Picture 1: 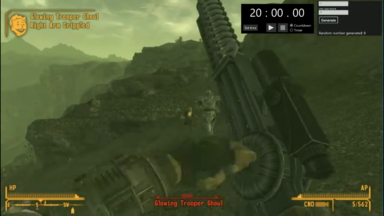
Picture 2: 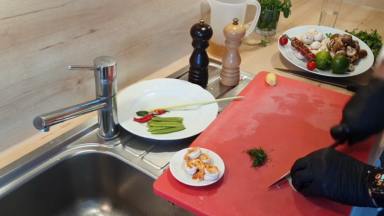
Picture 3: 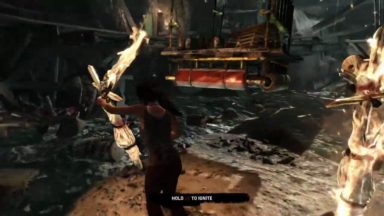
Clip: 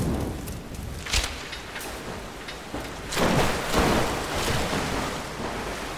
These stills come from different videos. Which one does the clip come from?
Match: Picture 3